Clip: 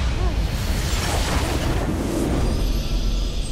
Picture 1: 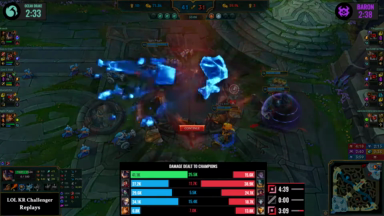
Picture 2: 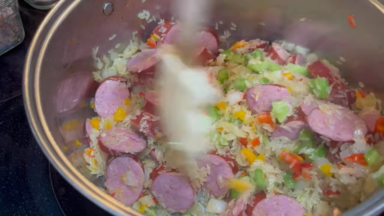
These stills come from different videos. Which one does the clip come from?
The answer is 1